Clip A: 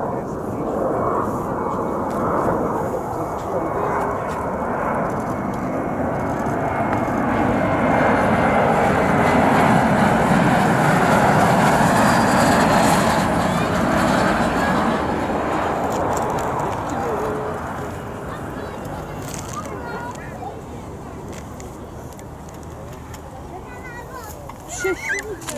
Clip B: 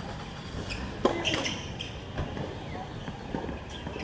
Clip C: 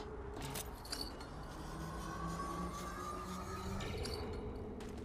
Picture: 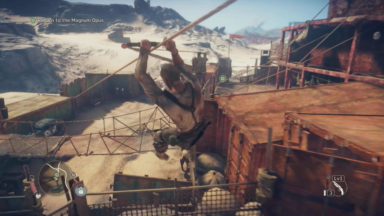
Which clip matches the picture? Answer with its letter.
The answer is C